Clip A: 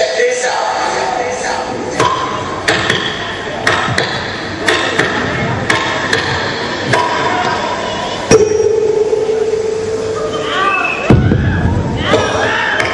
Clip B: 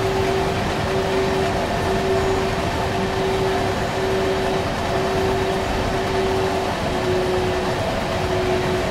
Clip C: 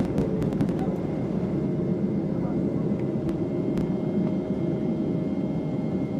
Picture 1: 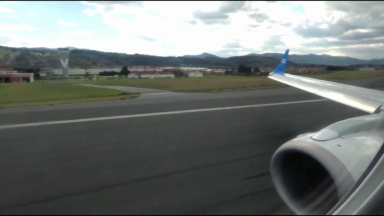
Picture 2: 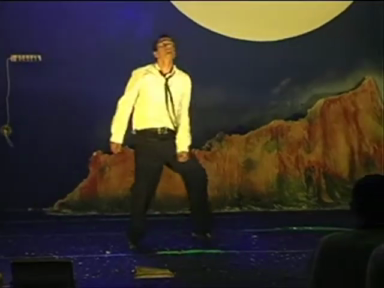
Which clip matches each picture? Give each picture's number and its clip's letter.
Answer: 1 C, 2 A